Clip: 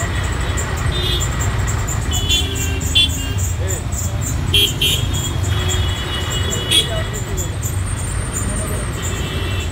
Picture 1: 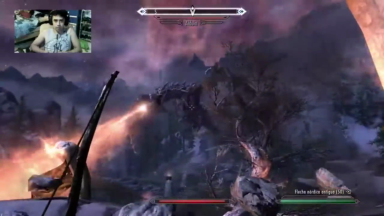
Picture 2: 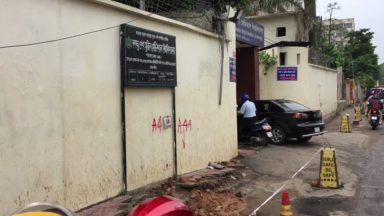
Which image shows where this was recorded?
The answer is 2